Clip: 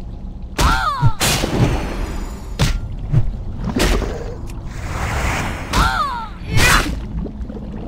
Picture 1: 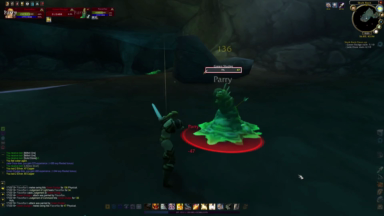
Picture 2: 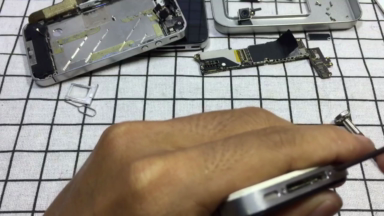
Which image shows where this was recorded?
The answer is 1